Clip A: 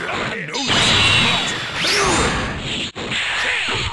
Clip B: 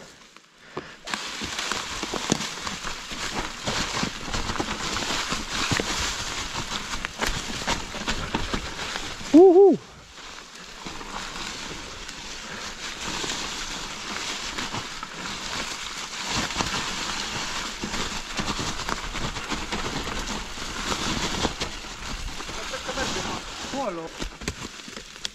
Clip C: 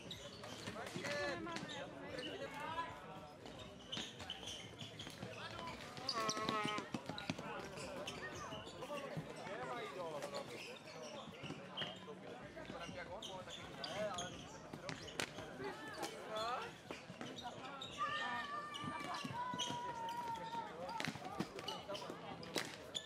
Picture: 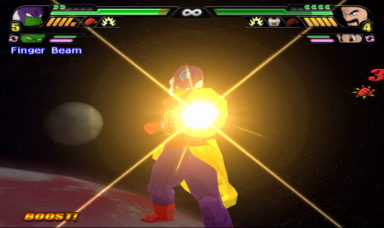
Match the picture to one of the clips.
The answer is A